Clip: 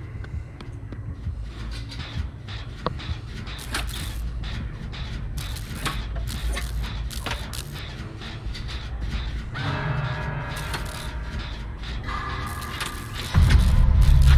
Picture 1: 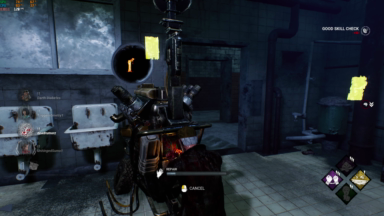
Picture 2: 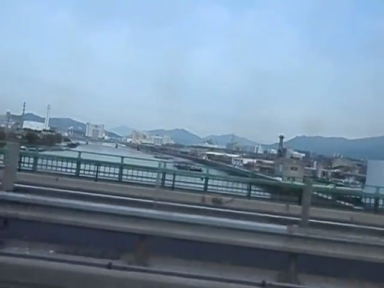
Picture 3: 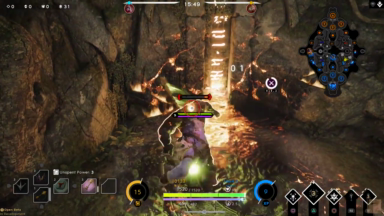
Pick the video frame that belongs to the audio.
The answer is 1